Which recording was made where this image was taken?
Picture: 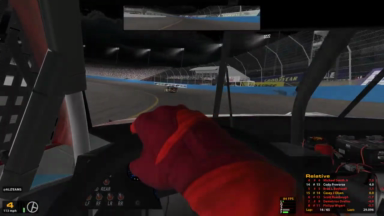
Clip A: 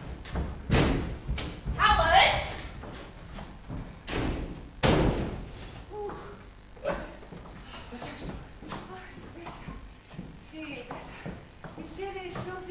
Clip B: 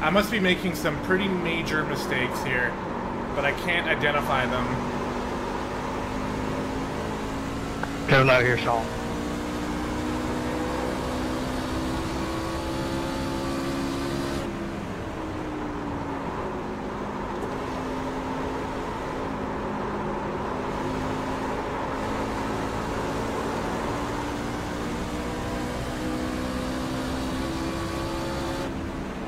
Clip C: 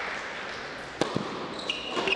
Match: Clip B